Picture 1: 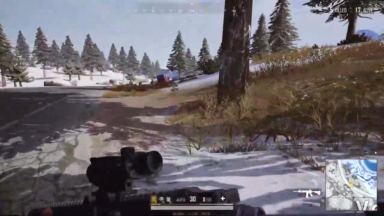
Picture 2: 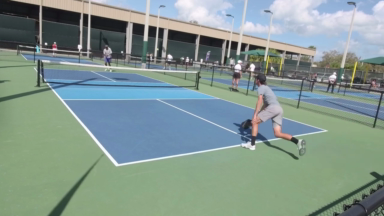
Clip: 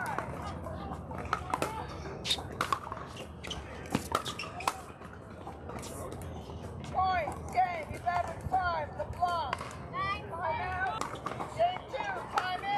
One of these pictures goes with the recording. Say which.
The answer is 2